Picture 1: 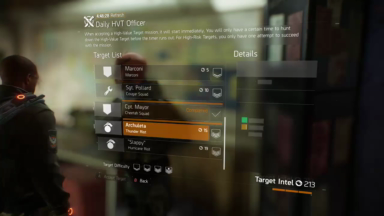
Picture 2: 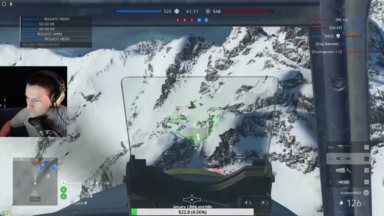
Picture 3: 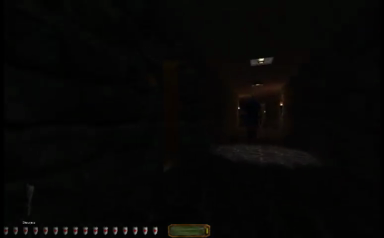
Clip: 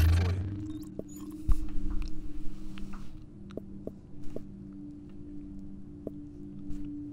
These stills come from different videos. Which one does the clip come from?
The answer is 1